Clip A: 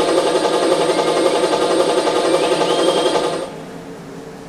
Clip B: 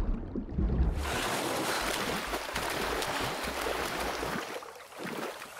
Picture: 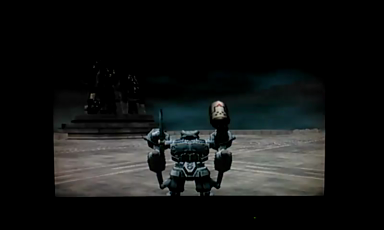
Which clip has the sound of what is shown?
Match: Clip A